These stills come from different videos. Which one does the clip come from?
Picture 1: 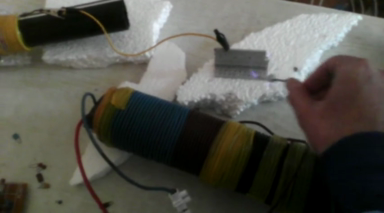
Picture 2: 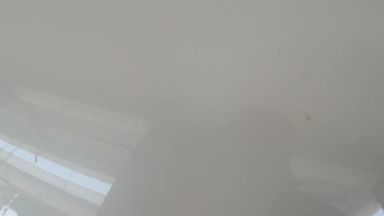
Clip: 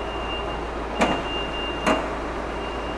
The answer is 2